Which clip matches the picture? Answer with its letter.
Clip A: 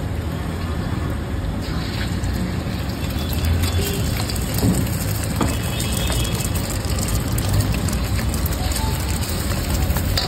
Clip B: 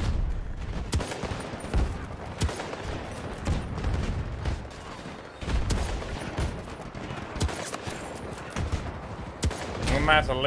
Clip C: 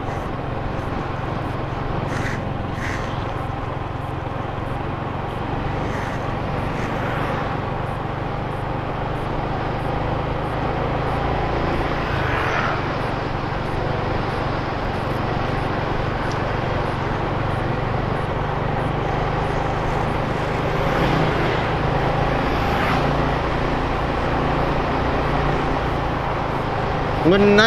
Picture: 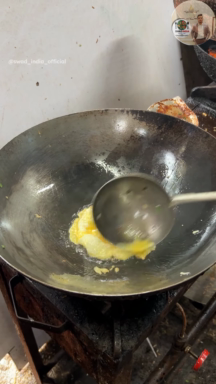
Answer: A